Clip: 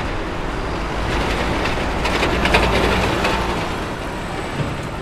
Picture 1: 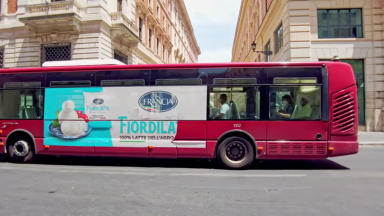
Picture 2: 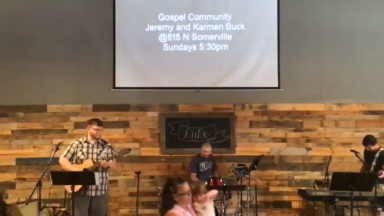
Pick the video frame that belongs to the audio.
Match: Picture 1